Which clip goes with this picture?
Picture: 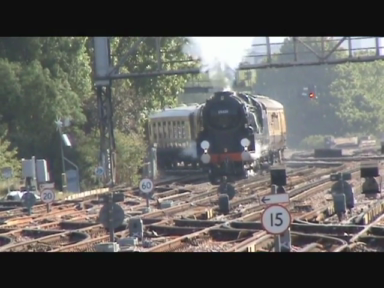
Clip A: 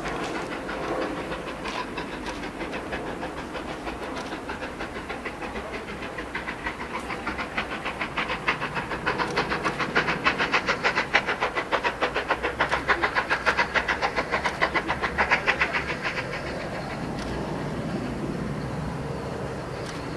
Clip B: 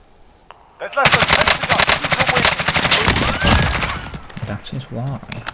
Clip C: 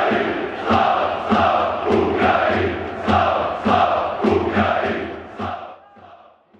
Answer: A